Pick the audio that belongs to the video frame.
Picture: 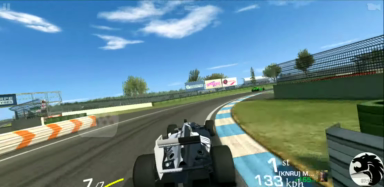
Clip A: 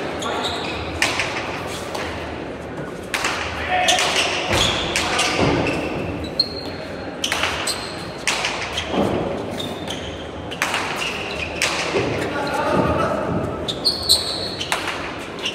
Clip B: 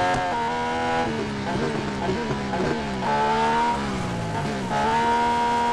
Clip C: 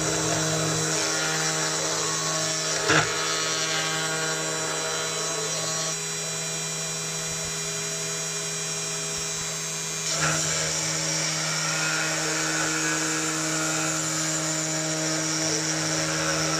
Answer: B